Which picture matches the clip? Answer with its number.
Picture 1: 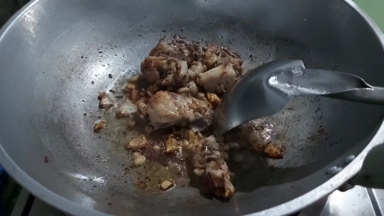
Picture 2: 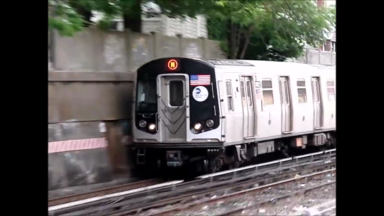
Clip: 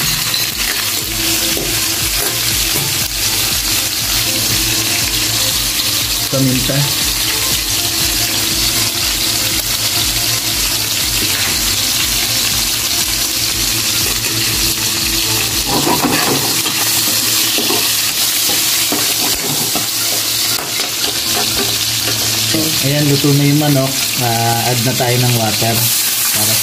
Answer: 1